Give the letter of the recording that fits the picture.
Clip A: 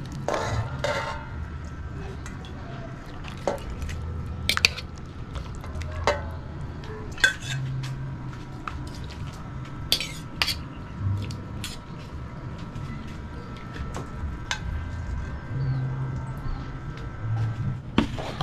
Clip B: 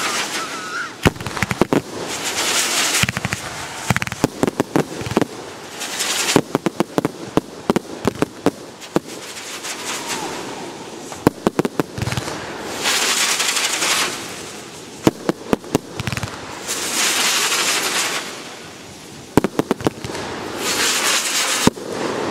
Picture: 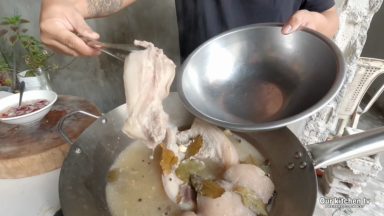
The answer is A